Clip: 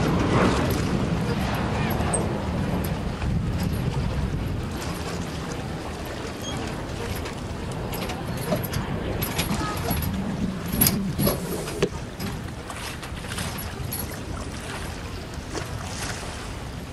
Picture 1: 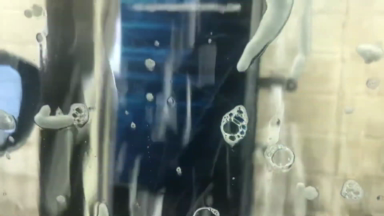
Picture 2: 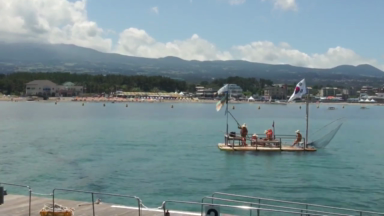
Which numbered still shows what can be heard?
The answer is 2